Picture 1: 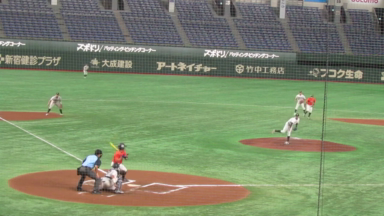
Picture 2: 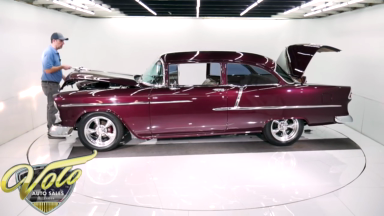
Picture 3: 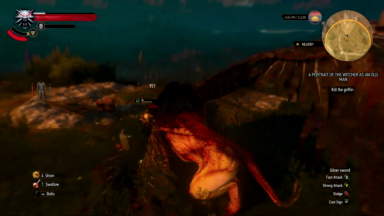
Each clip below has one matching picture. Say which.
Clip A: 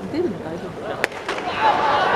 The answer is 1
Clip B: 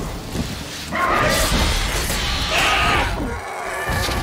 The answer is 3